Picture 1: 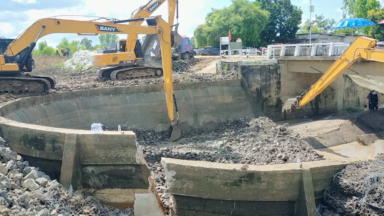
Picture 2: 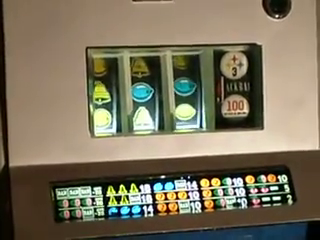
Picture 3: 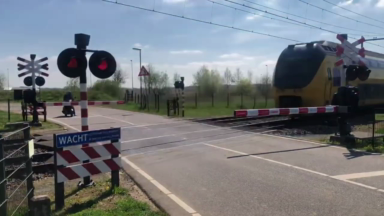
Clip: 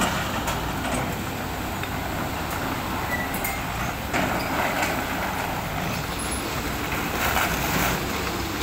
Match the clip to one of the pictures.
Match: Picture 1